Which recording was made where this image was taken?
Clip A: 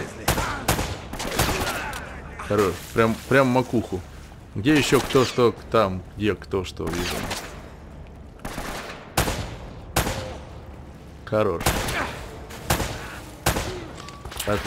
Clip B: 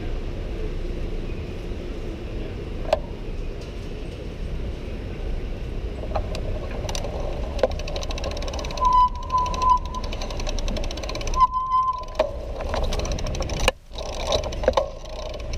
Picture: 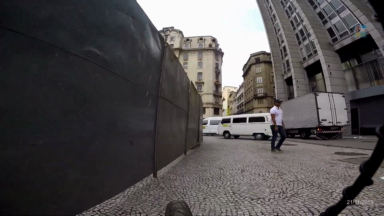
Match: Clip B